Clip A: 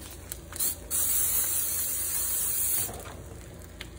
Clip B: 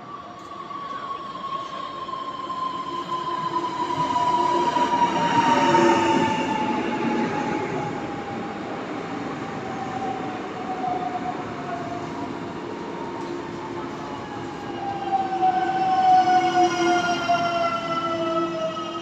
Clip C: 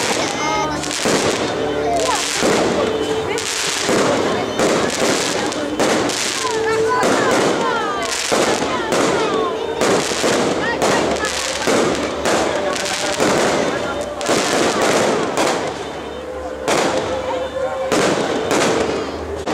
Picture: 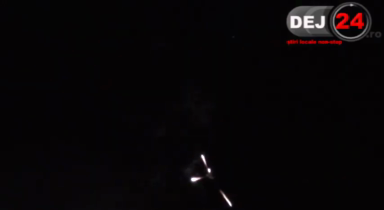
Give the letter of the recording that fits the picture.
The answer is C